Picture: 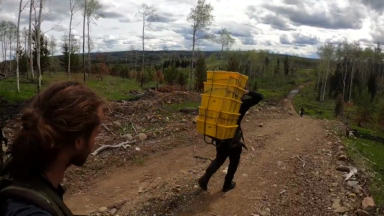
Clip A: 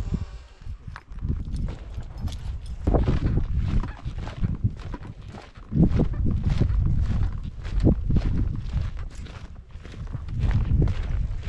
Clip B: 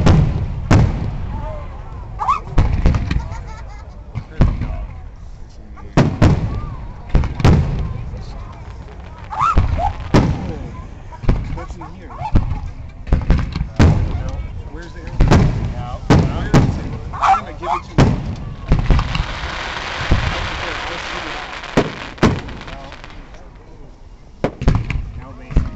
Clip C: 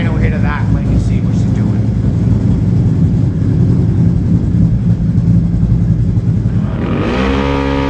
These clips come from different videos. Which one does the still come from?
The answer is A